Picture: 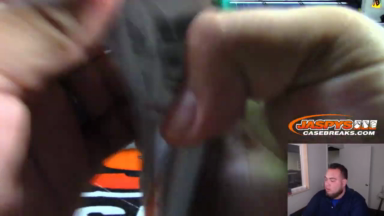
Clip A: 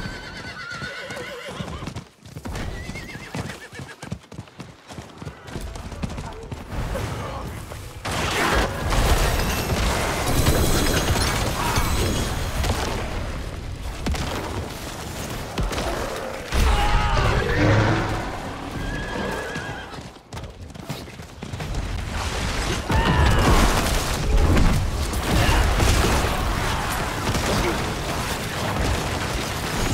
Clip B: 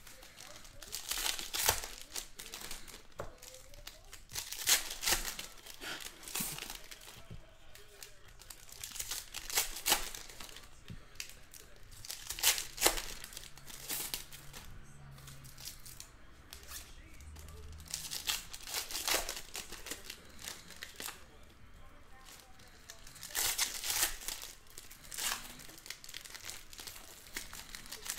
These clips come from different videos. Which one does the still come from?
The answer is B